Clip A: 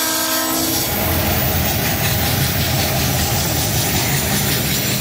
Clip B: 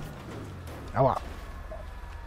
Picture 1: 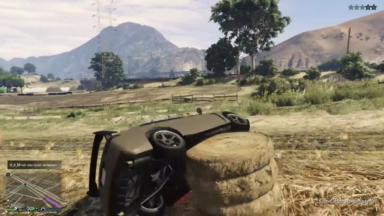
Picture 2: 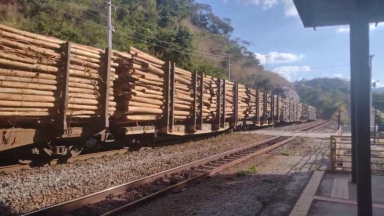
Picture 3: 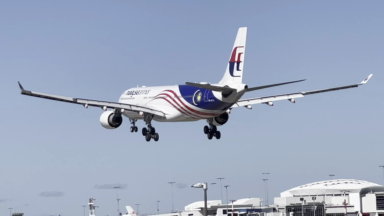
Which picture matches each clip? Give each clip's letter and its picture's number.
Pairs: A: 2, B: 1